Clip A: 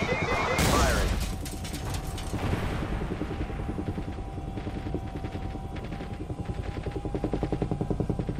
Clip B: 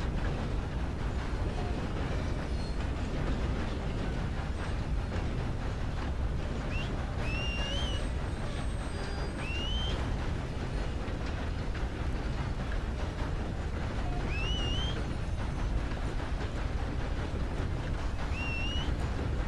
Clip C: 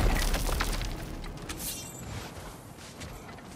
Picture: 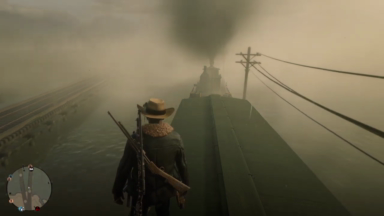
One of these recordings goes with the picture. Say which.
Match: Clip B